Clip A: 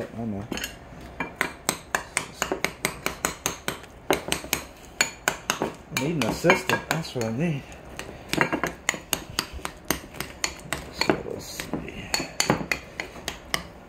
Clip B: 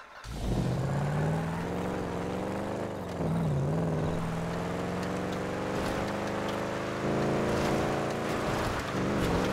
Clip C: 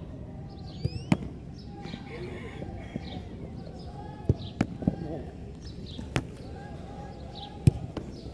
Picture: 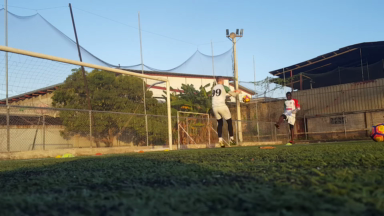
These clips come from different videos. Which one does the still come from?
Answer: C